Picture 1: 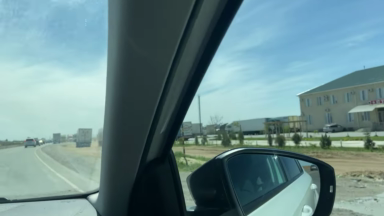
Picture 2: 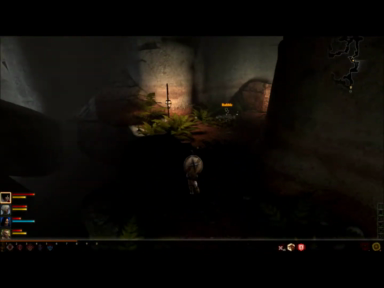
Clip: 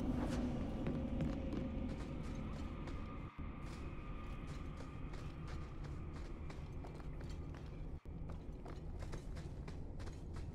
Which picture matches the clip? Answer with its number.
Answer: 2